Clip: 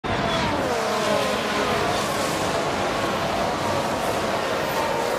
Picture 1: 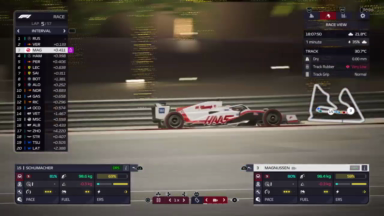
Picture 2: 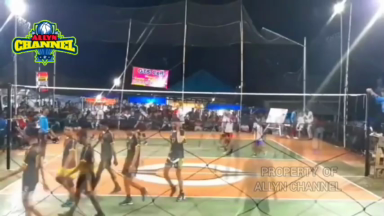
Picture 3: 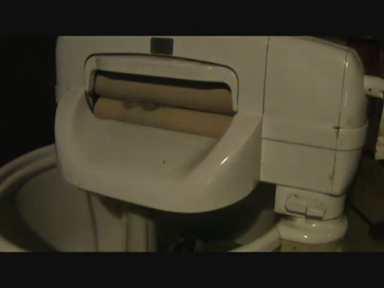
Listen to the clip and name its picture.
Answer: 1